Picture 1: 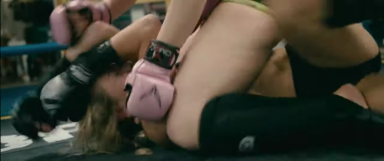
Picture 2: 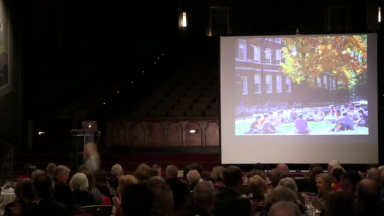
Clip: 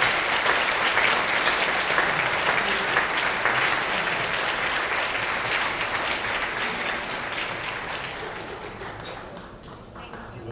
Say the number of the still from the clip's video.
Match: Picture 2